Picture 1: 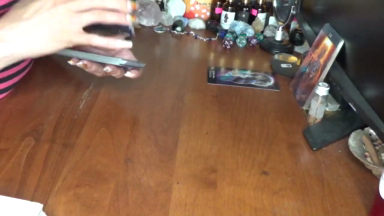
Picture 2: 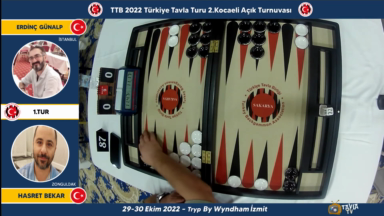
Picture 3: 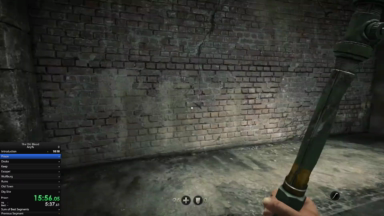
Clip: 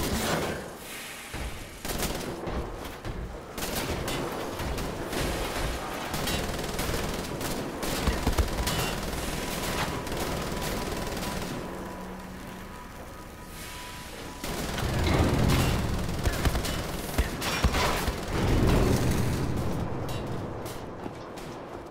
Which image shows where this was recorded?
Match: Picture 3